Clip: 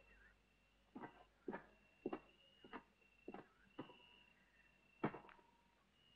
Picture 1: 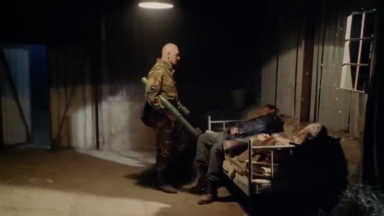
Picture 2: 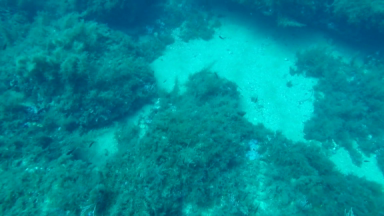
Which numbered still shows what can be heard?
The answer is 1